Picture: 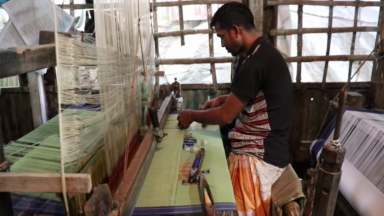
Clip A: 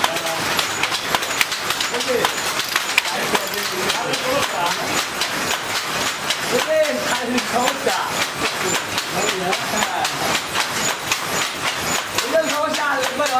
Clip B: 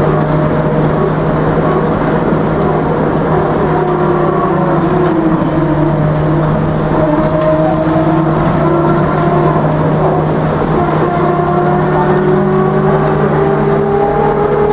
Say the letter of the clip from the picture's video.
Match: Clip A